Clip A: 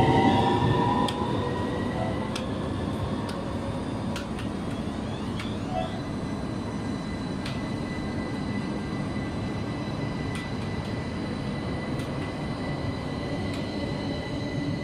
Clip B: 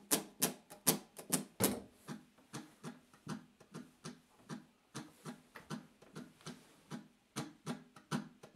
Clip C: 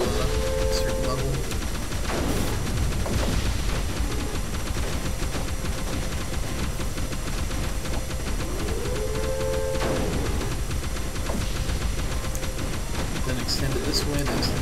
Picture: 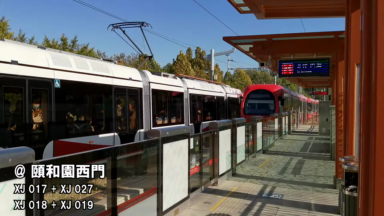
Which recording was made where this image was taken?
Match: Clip A